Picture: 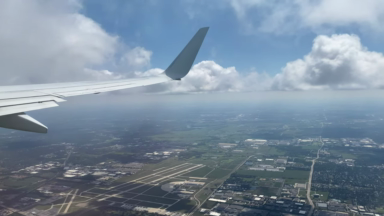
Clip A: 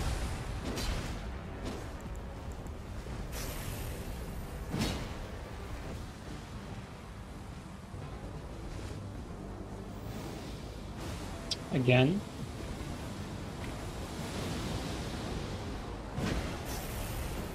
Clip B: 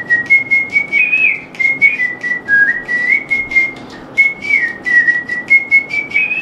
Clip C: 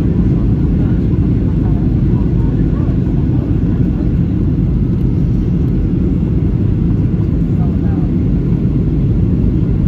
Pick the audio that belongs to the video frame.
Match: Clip C